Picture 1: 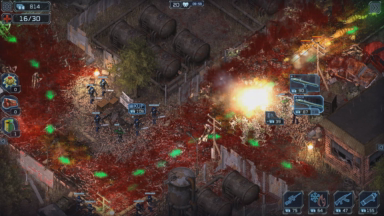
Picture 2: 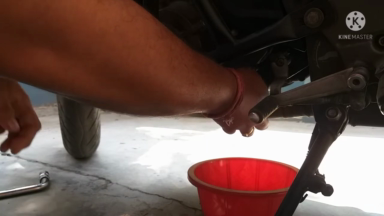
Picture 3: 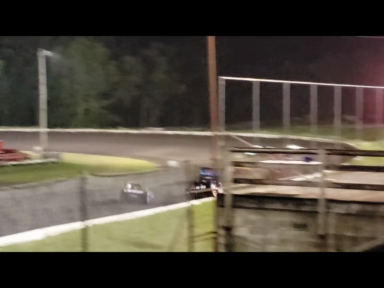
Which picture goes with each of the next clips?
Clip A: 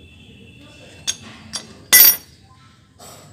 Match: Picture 2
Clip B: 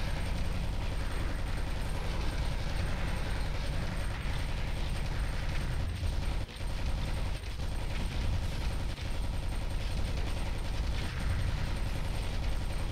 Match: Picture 1